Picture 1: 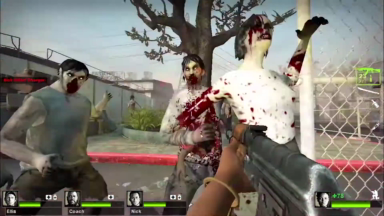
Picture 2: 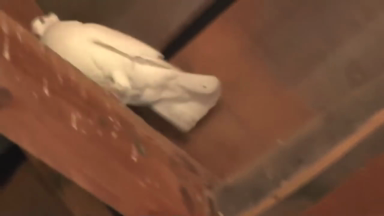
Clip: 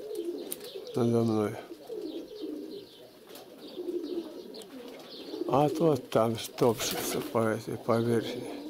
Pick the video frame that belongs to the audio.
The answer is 2